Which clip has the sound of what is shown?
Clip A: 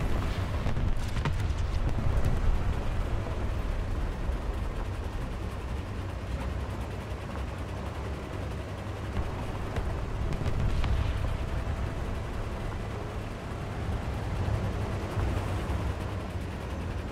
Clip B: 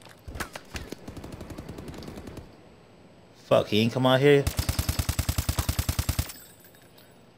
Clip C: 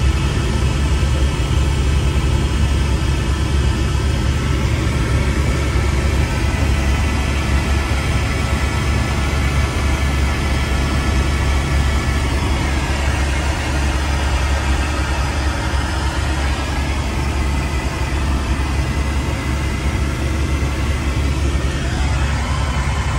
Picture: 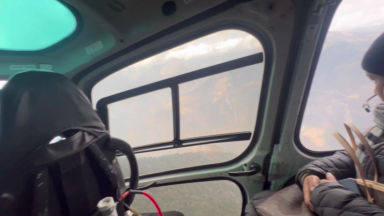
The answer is C